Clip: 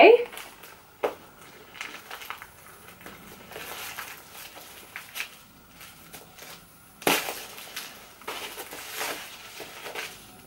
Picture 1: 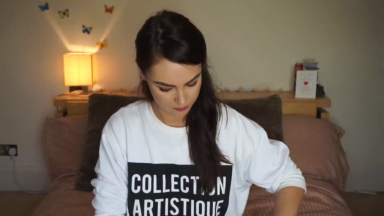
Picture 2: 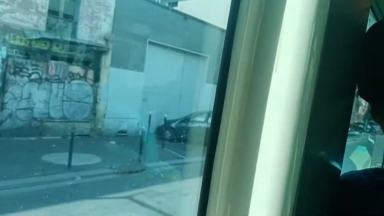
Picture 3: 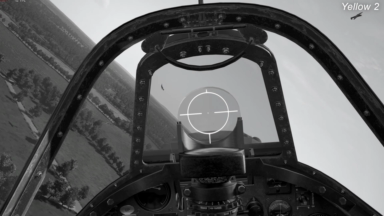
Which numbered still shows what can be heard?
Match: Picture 1